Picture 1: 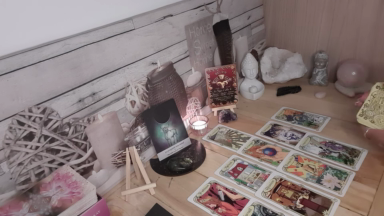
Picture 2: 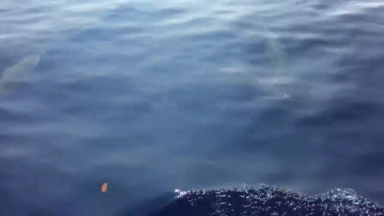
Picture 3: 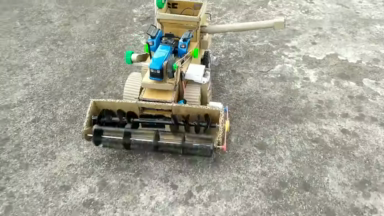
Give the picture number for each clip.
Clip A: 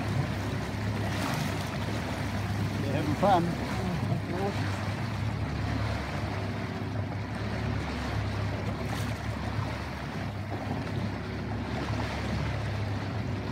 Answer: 2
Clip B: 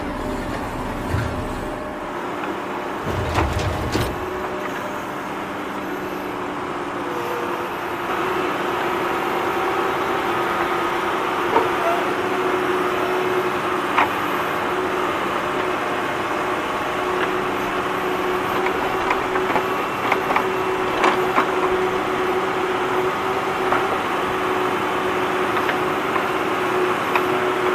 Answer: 3